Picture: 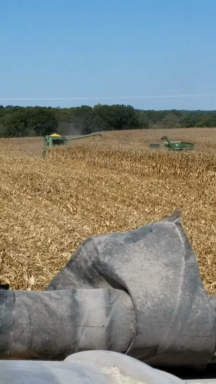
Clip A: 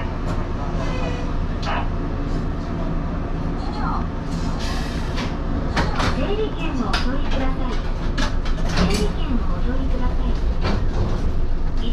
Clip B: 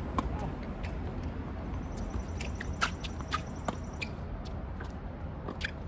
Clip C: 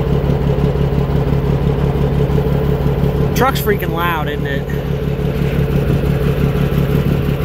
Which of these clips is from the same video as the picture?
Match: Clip C